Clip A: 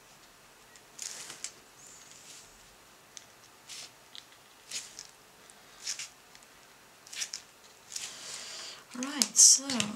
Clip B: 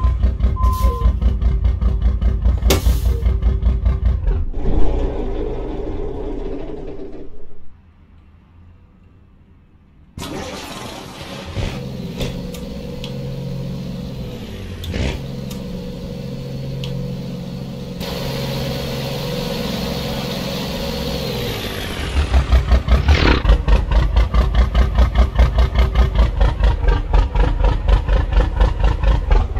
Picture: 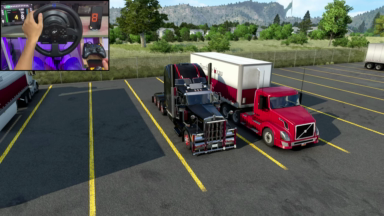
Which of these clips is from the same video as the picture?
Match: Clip B